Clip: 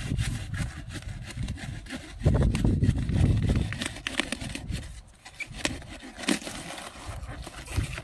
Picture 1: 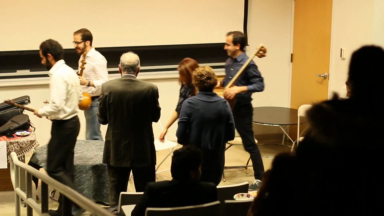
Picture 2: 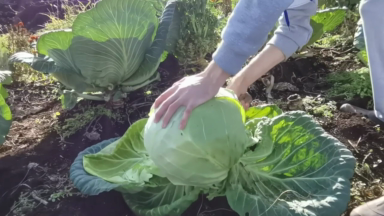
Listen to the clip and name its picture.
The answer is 2